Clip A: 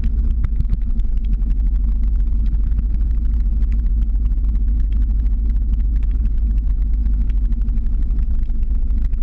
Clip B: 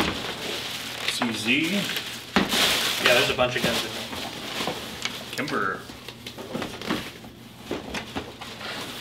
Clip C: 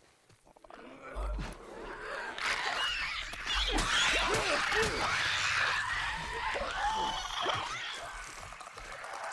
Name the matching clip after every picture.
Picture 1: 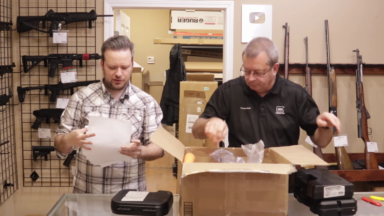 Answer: B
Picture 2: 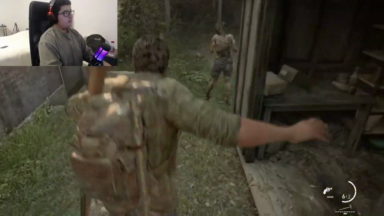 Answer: C